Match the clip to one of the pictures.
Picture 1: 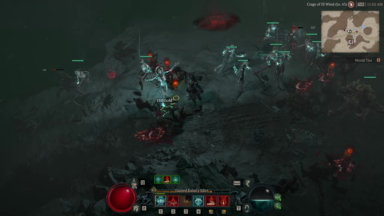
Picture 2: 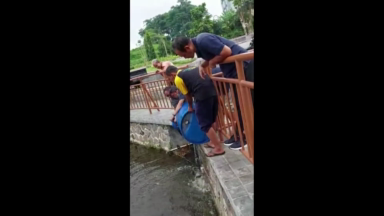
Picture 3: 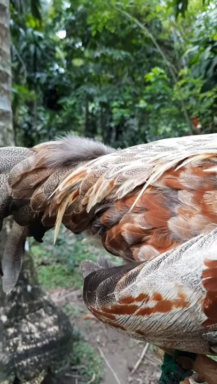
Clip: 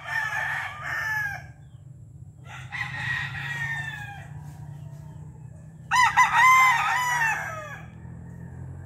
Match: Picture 3